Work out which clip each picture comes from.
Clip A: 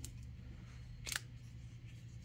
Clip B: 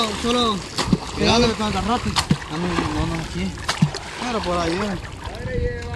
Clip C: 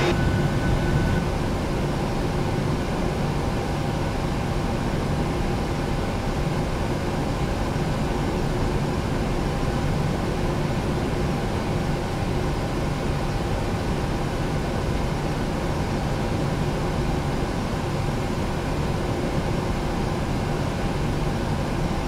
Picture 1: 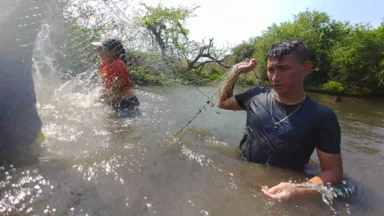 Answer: B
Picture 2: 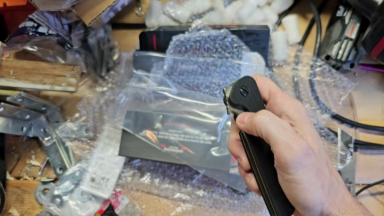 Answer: A